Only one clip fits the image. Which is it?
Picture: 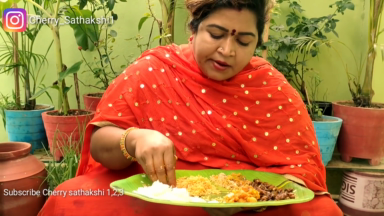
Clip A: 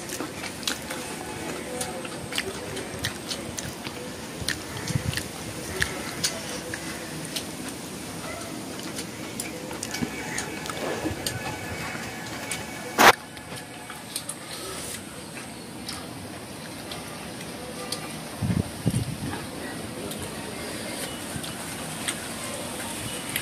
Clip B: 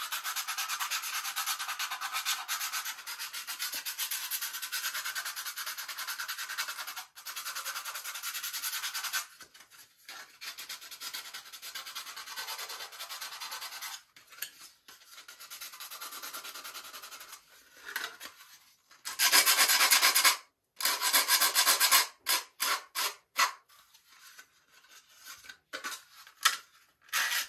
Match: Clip A